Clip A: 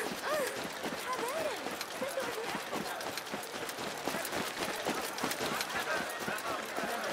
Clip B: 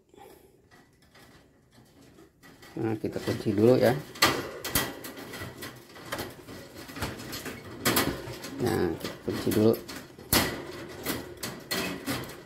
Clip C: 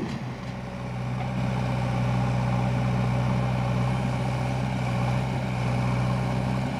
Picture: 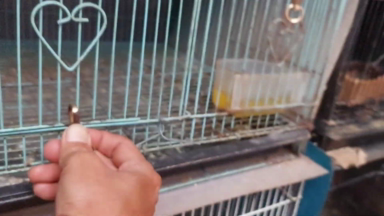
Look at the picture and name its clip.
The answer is B